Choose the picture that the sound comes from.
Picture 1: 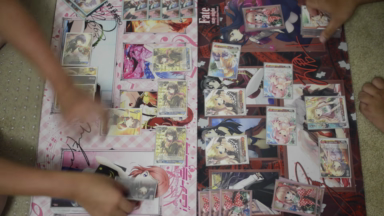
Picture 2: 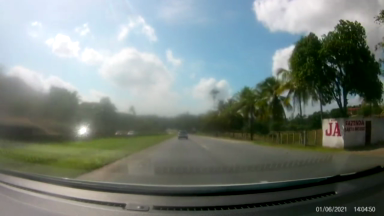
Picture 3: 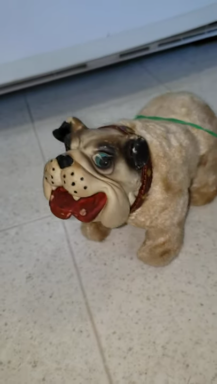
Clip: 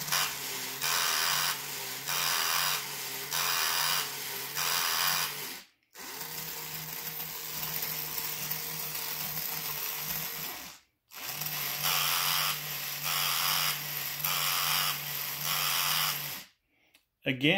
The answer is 3